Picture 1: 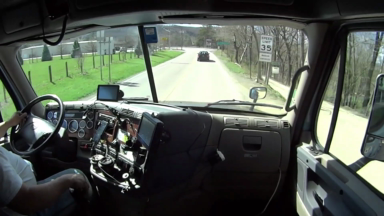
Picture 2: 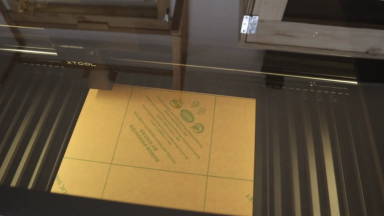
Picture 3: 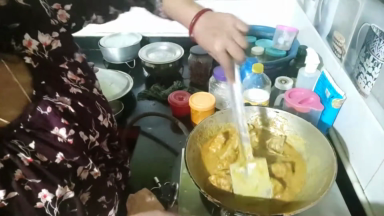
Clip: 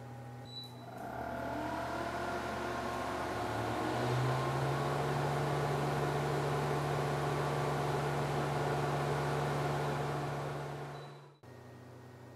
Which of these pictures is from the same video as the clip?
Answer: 2